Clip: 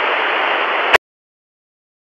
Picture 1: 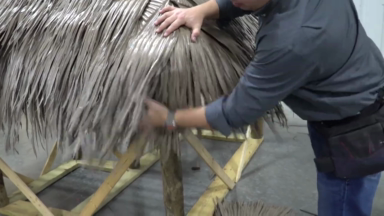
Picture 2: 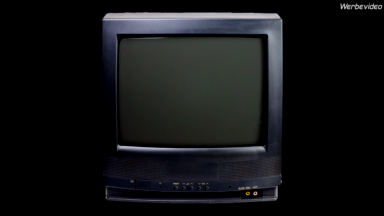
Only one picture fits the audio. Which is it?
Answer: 2